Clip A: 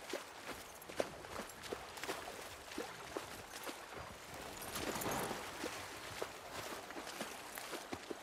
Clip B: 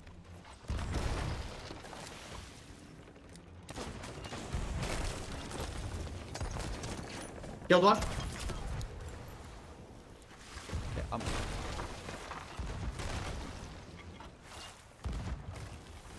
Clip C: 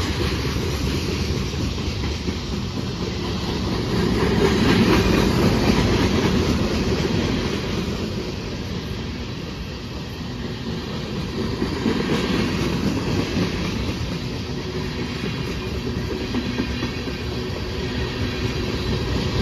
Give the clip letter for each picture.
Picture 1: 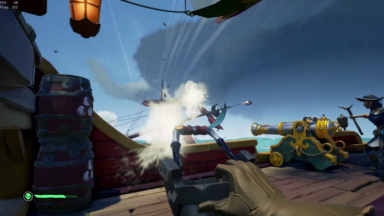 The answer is B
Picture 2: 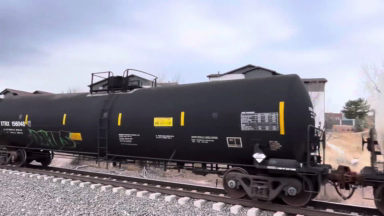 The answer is C